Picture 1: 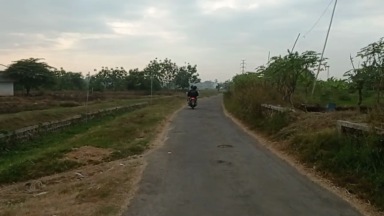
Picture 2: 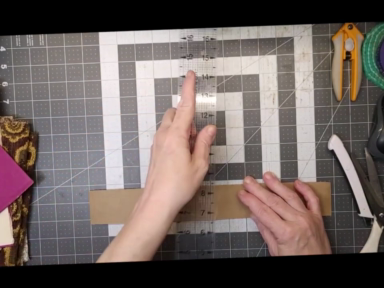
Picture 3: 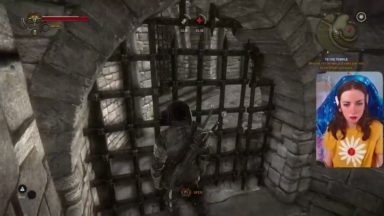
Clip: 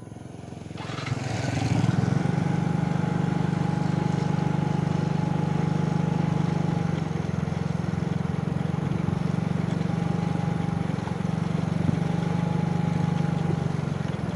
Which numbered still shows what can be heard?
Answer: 1